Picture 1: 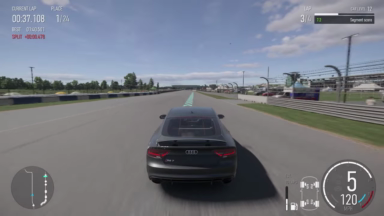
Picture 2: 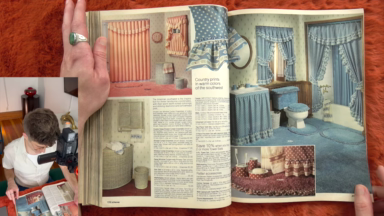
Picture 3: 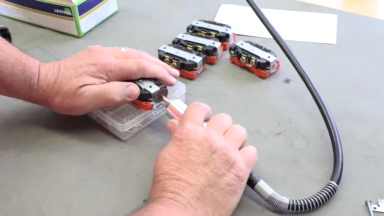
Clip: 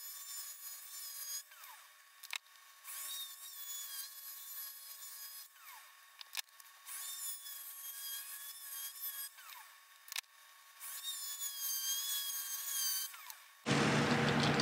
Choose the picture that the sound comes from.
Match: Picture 3